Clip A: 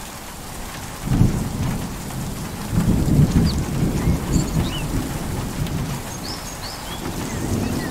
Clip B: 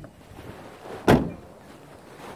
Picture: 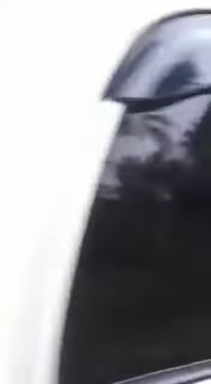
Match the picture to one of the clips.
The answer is B